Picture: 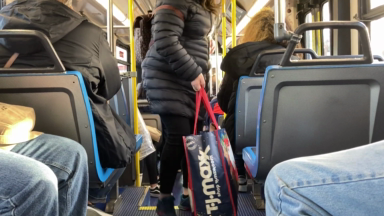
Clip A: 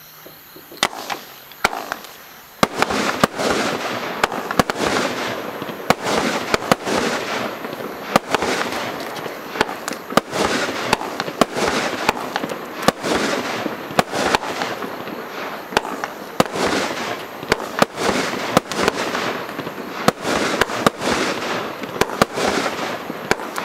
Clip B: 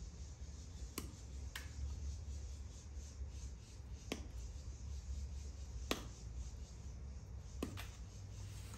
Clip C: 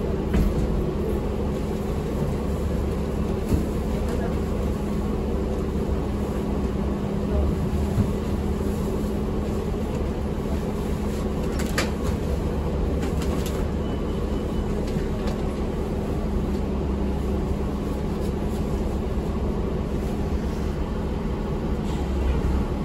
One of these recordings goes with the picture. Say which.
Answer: C